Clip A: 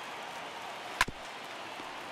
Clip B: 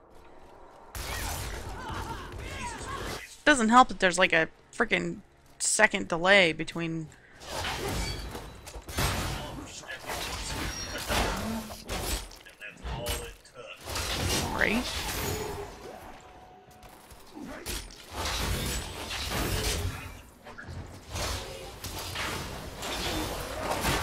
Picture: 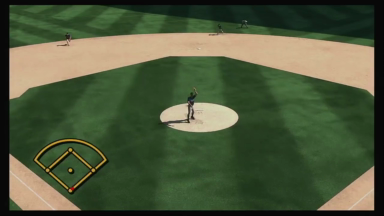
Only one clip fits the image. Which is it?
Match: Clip A